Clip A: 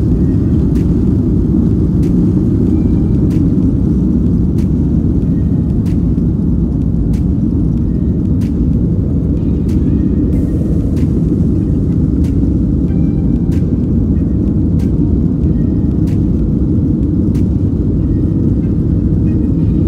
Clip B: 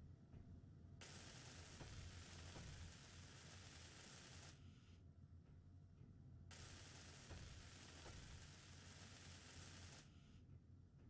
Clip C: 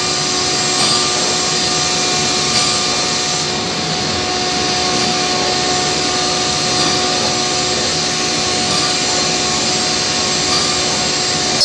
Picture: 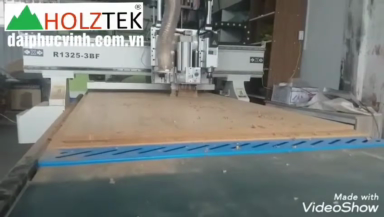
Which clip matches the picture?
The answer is C